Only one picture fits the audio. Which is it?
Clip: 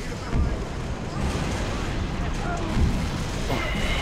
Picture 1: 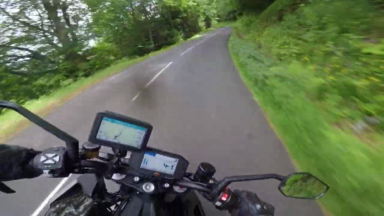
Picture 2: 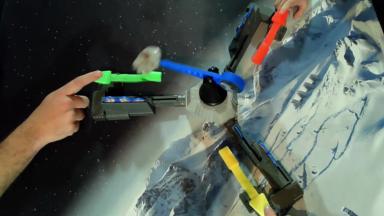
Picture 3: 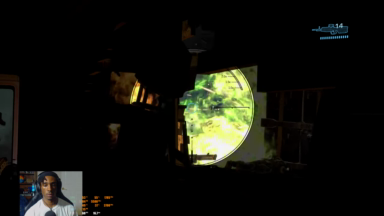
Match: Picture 3